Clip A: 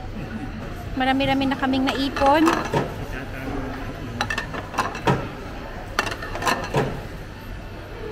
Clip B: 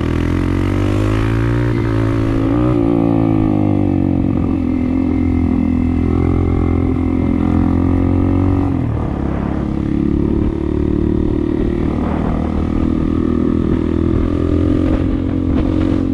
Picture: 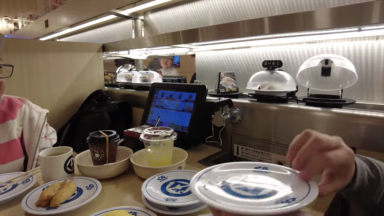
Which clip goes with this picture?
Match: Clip A